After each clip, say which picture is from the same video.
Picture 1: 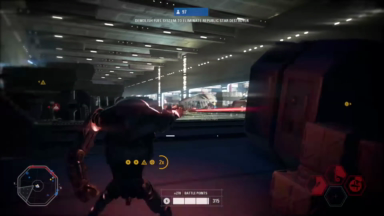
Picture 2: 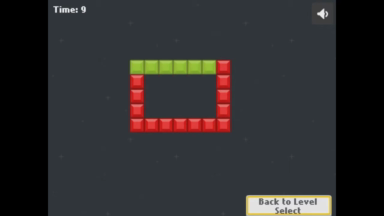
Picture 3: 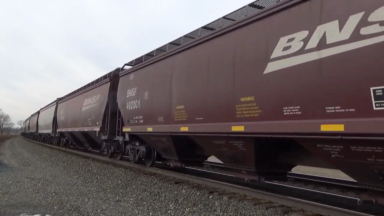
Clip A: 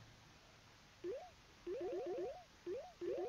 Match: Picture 2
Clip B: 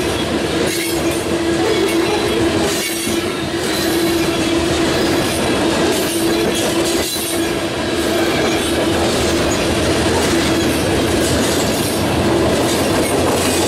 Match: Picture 3